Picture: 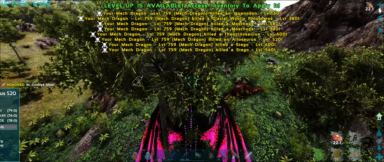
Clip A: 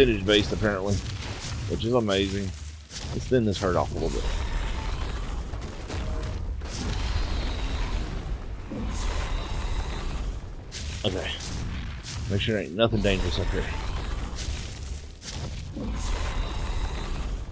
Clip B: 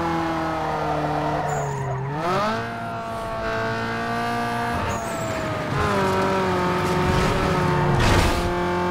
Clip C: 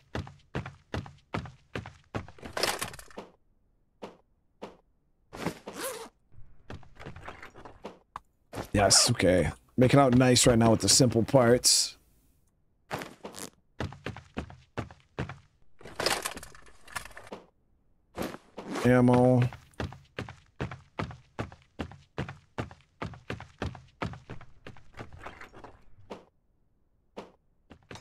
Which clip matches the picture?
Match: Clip A